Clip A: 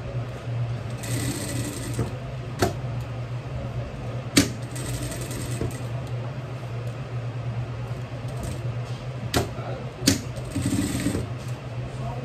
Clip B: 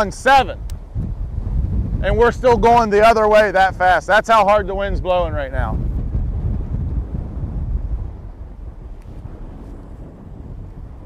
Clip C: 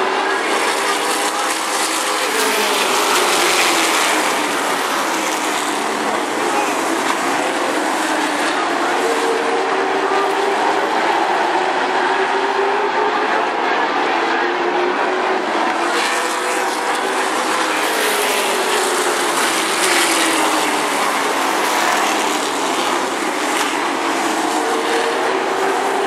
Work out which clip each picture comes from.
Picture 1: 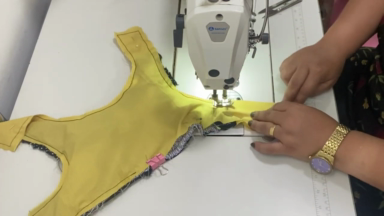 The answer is A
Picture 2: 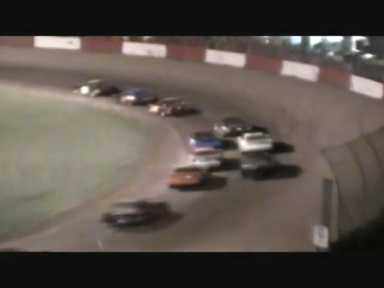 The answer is C